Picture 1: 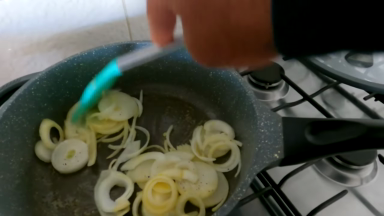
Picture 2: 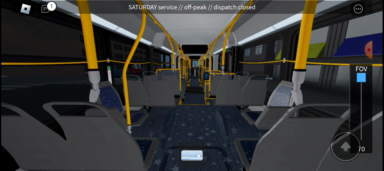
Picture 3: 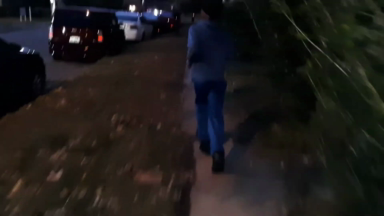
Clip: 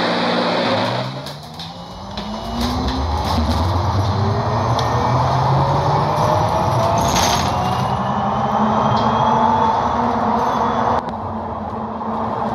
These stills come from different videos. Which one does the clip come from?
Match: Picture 2